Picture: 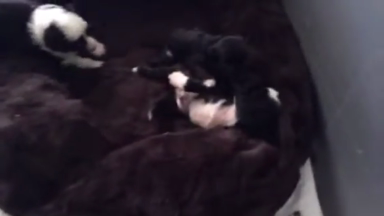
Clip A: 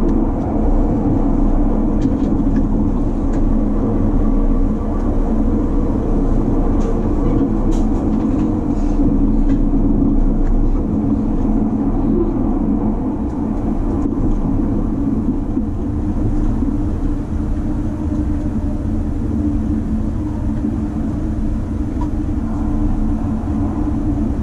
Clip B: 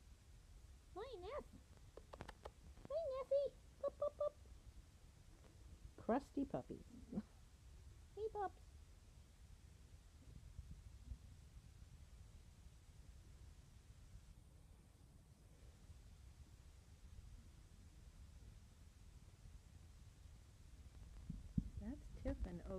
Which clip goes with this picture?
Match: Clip B